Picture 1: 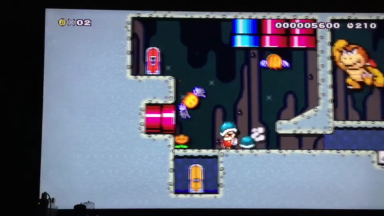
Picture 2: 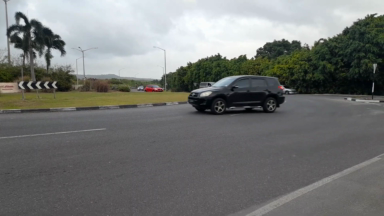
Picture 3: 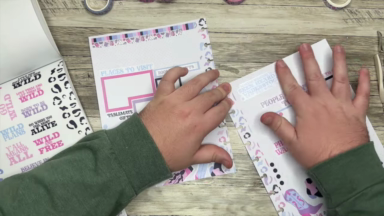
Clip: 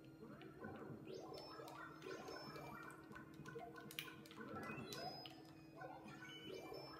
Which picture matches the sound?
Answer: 1